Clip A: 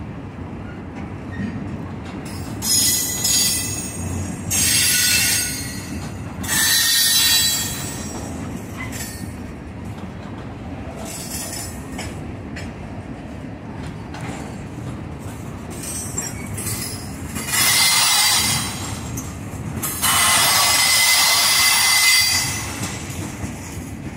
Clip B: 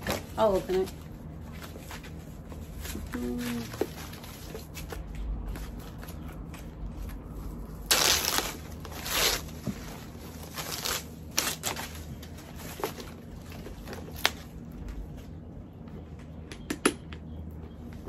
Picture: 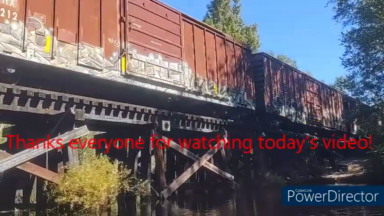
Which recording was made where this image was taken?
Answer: A